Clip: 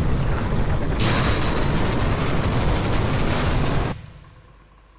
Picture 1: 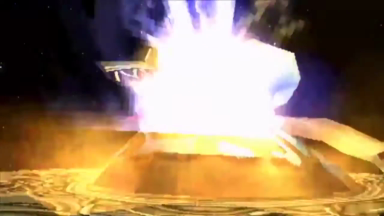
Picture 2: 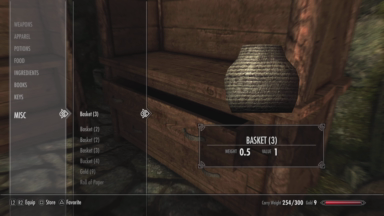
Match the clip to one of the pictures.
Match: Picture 1